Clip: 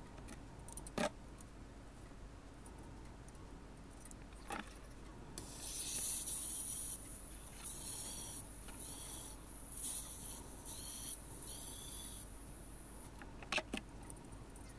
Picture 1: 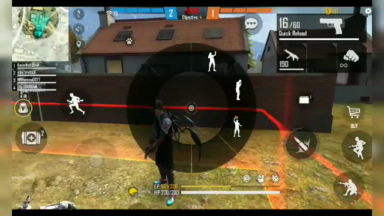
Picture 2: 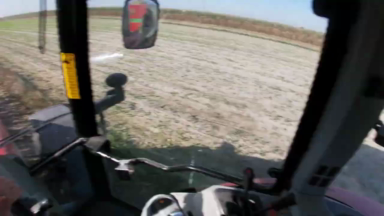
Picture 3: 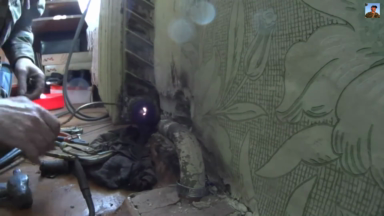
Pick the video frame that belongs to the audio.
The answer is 3